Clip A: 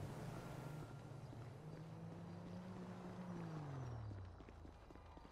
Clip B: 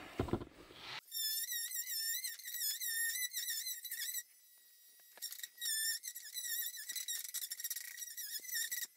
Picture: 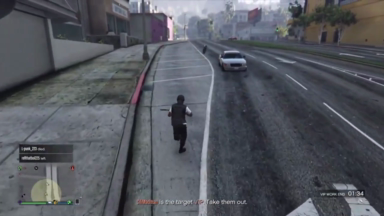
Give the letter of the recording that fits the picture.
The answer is A